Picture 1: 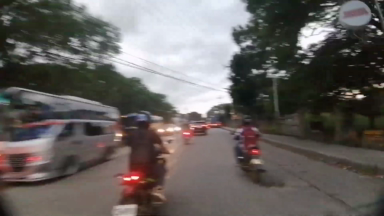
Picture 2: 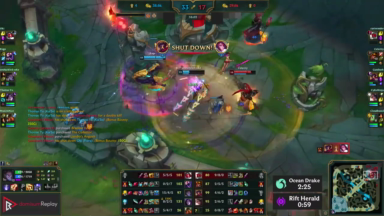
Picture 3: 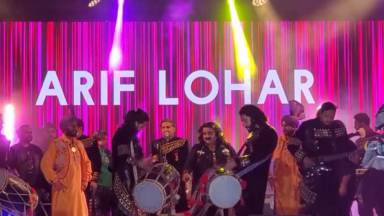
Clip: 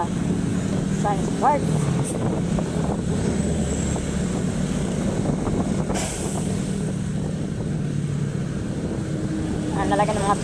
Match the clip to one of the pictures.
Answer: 1